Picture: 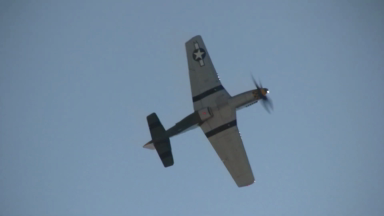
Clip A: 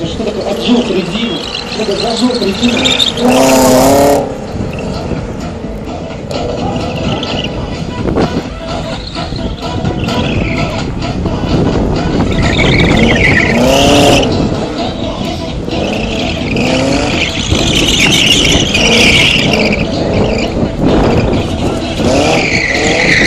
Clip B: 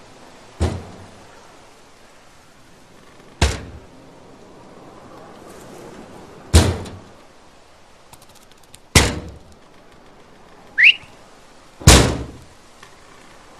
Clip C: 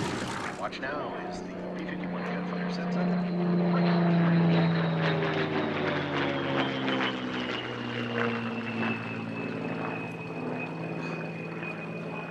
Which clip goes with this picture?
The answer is C